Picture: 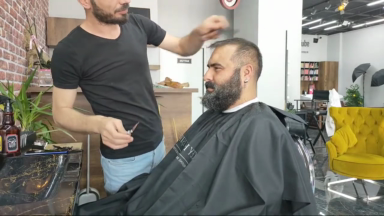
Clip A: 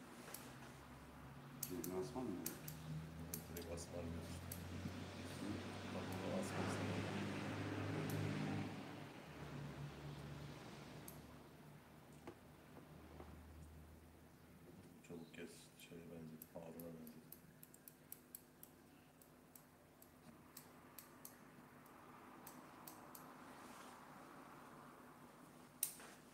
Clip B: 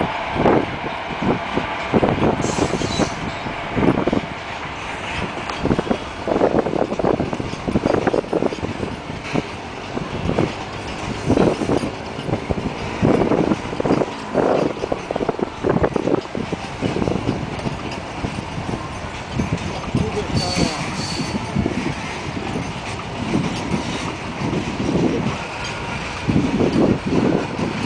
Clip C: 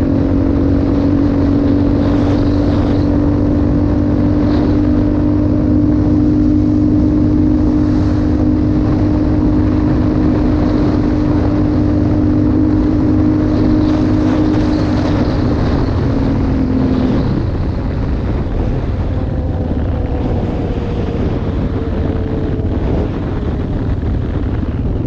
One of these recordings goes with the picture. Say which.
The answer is A